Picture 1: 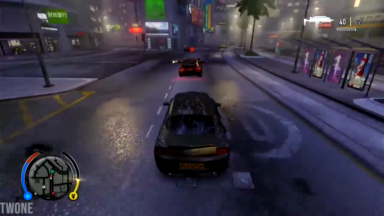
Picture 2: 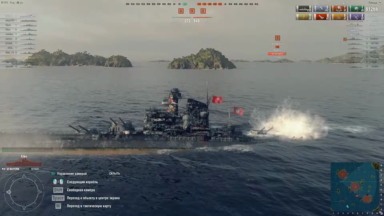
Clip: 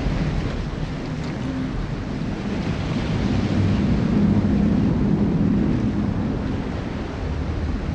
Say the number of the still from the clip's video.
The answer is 2